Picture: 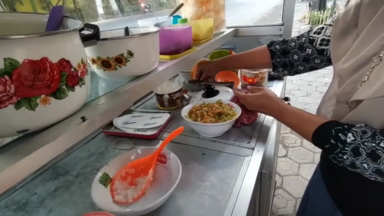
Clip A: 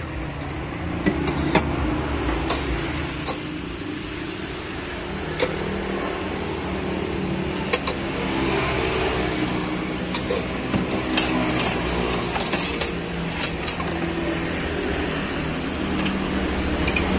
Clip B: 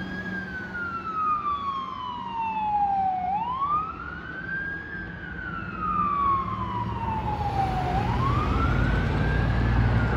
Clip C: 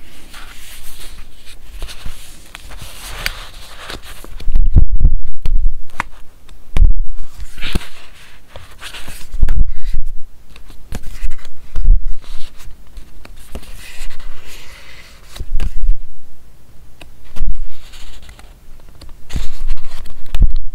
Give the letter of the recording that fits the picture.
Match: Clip A